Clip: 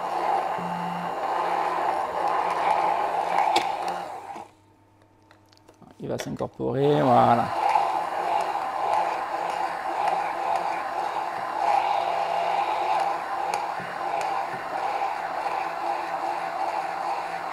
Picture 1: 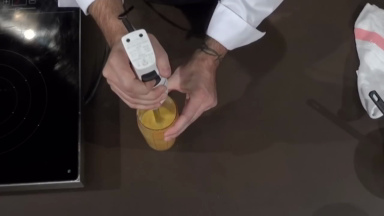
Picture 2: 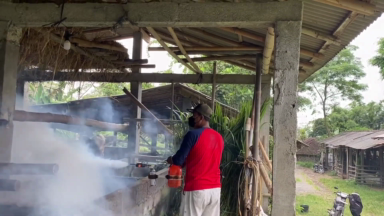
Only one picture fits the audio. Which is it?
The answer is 1